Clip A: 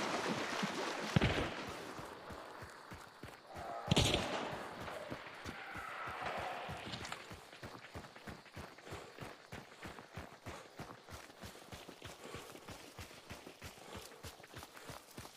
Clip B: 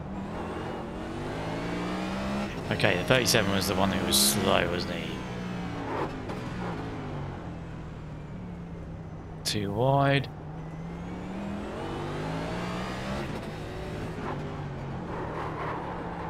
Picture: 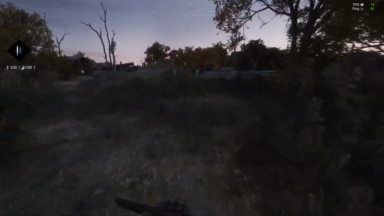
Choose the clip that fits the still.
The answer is A